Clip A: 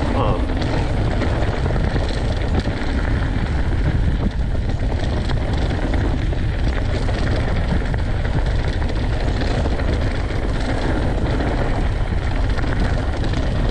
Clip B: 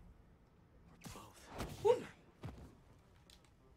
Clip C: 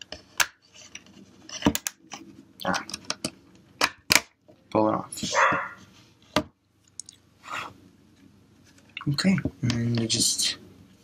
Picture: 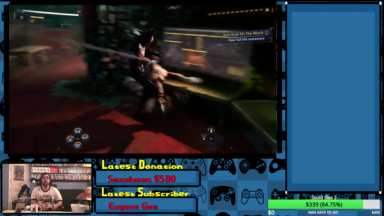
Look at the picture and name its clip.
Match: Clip B